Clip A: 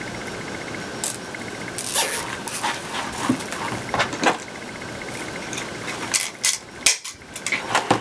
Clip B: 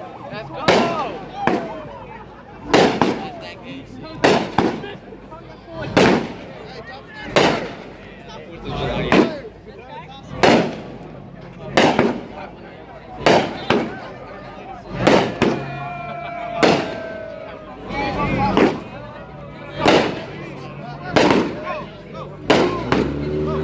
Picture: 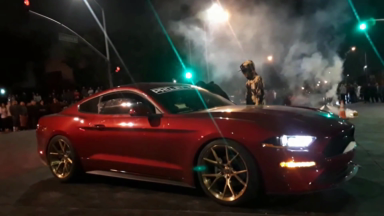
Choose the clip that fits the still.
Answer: B